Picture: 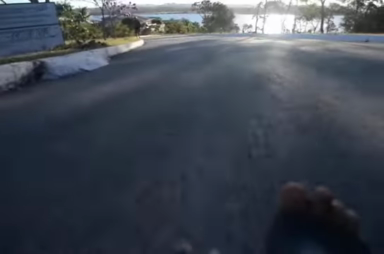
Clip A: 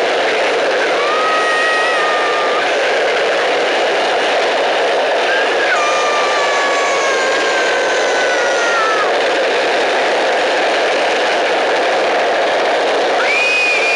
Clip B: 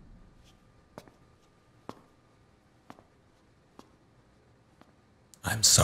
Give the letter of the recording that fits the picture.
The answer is A